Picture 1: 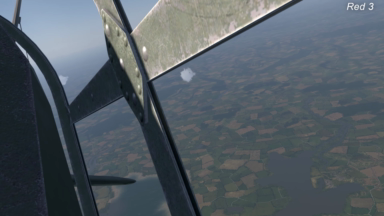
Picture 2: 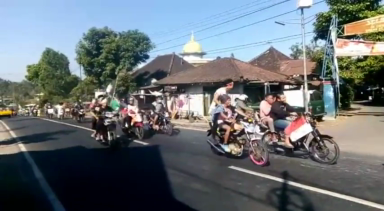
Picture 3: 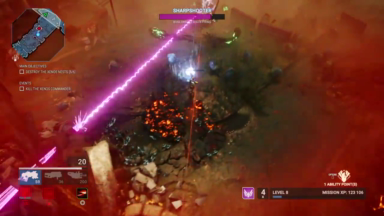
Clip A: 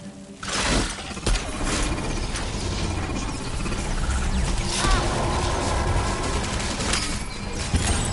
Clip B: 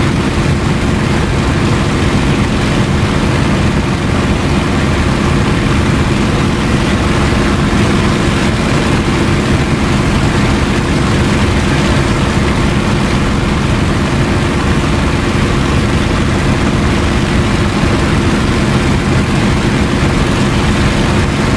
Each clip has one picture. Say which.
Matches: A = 3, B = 1